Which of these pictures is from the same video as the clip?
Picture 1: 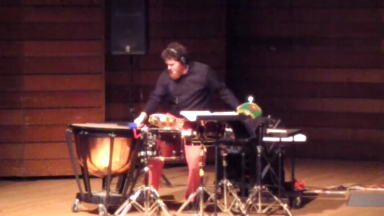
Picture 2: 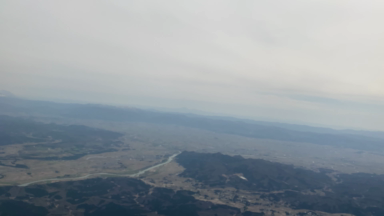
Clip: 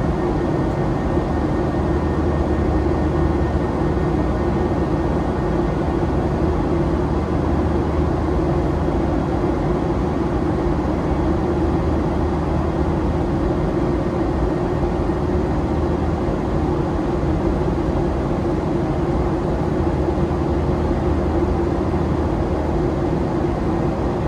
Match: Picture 2